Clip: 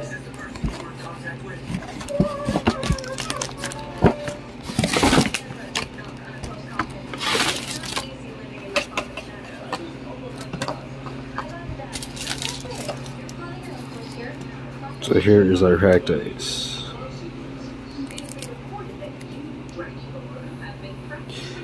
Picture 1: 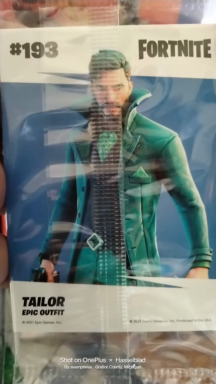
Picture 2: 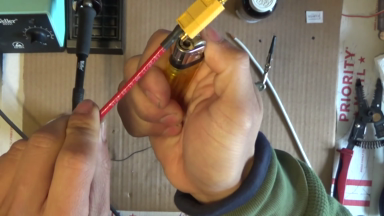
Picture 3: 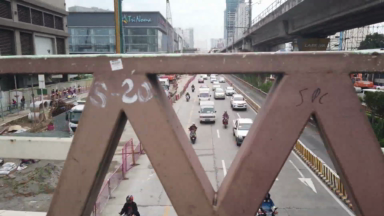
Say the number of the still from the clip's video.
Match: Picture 1